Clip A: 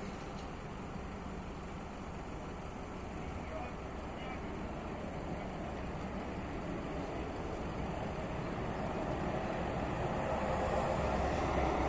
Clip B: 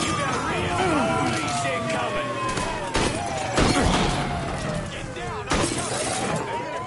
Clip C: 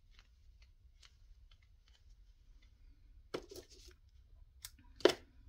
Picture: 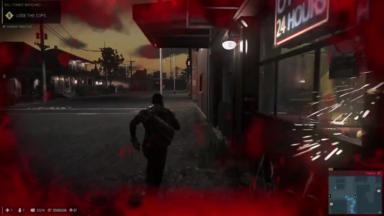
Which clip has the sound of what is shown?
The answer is B